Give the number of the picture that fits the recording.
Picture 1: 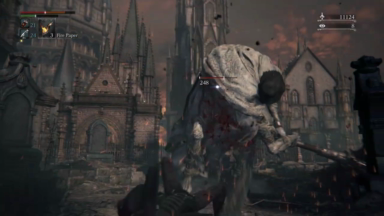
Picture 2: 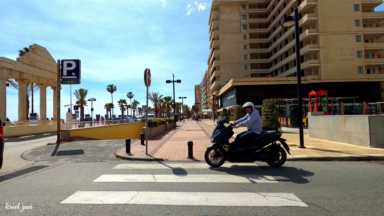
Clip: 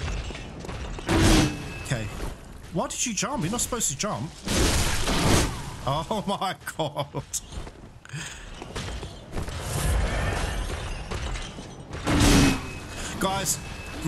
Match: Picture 1